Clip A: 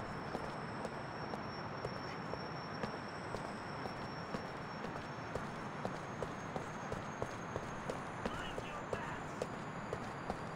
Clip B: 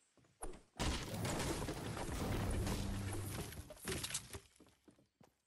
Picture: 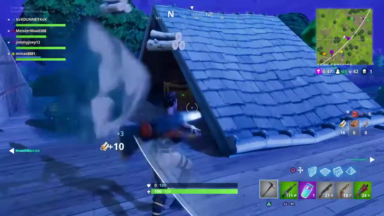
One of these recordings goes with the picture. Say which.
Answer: B